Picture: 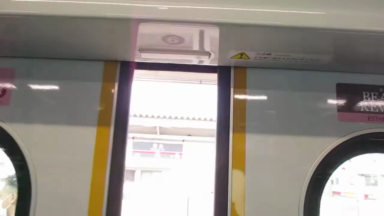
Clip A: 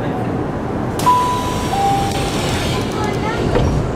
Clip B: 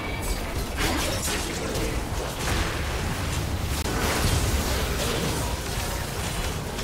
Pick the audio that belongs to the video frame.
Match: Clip A